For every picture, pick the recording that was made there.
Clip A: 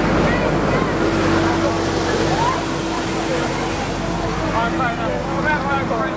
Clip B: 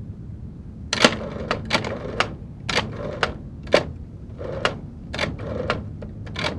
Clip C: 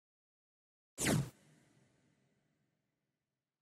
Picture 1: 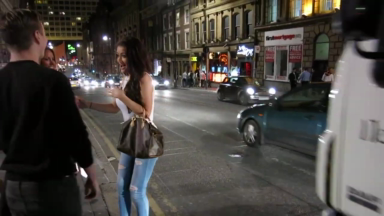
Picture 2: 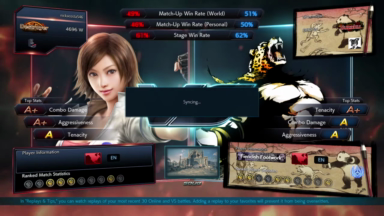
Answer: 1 A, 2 C